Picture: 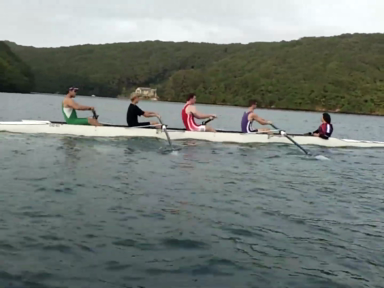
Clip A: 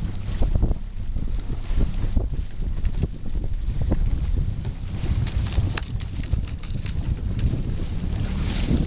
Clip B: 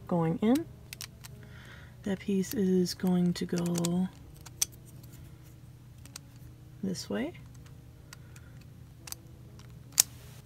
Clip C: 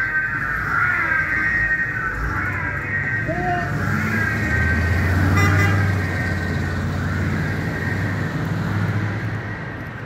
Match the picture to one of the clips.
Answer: A